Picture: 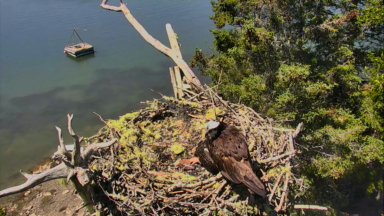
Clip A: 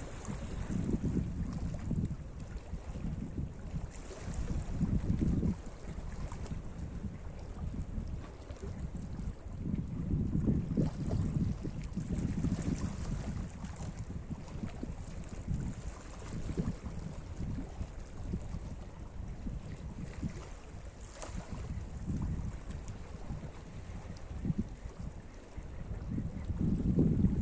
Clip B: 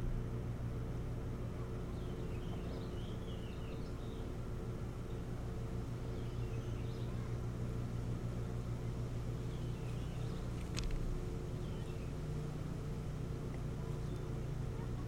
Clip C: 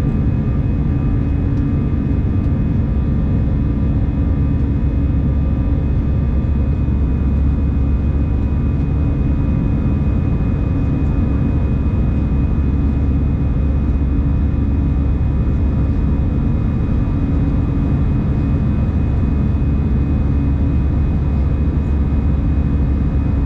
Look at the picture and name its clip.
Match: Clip B